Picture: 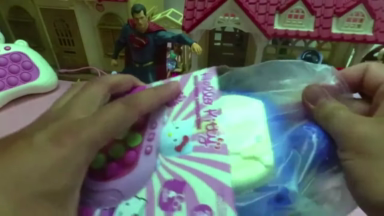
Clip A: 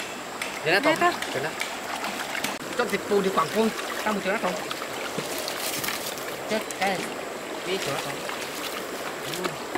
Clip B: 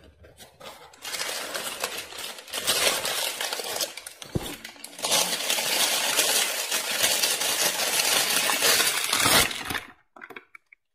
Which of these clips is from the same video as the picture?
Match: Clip B